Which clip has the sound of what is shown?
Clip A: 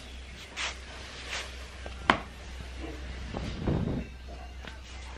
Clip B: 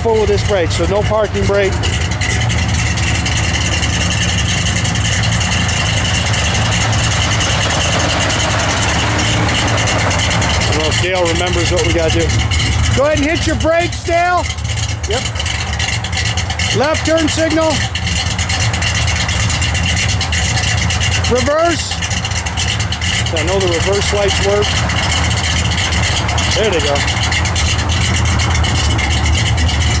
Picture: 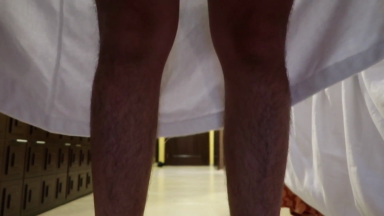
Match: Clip A